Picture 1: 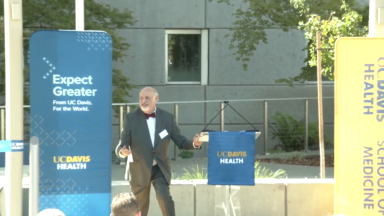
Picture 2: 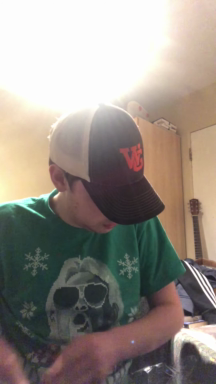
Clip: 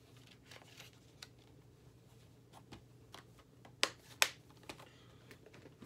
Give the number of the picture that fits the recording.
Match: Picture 2